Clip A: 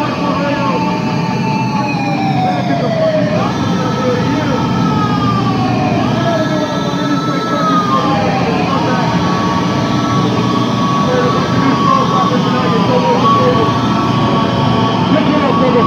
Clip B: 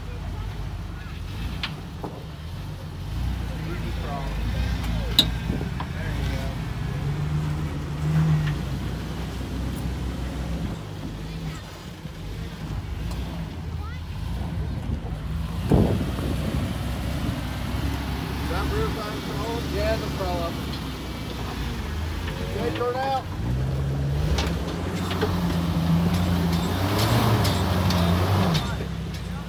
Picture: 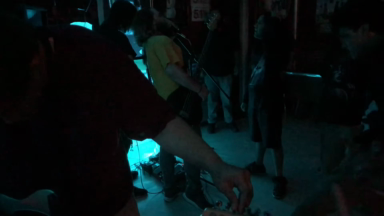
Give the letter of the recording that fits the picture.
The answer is A